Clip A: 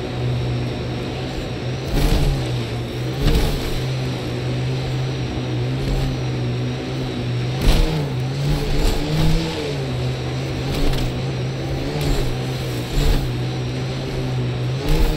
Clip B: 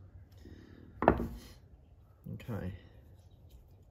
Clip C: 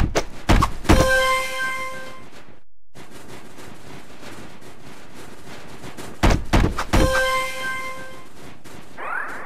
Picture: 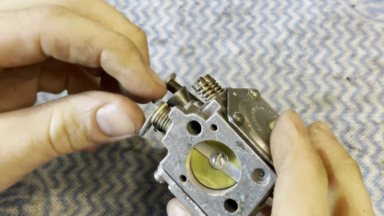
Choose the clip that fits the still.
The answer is B